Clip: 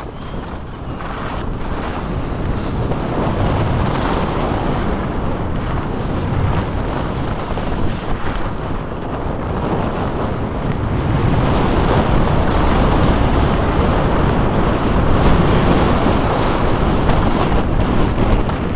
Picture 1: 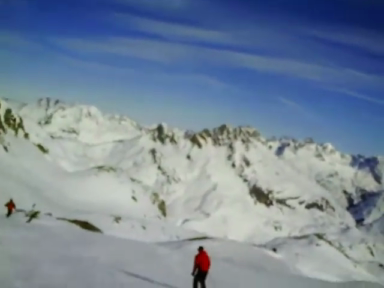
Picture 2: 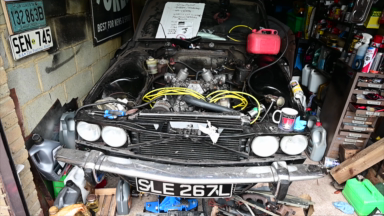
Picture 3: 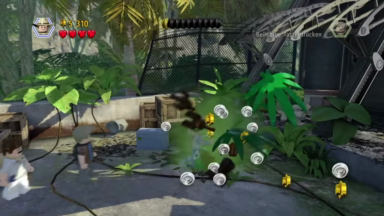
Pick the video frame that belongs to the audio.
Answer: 1